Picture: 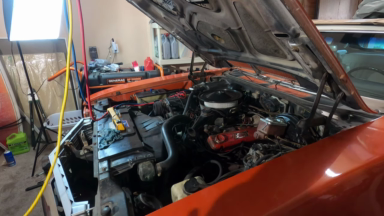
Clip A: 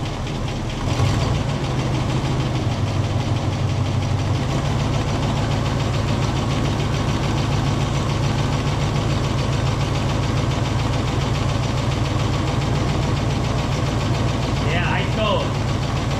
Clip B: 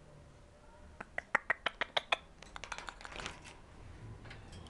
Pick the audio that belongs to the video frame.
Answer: A